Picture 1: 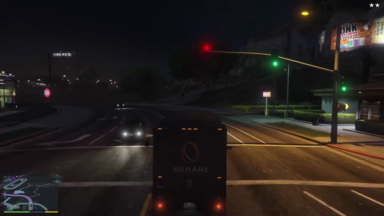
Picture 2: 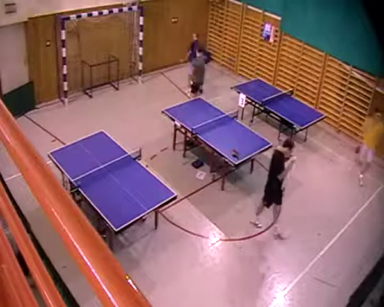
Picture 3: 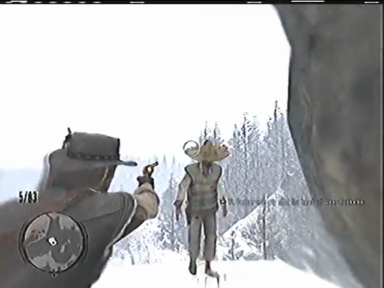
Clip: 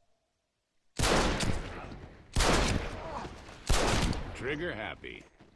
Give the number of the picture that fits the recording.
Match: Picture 3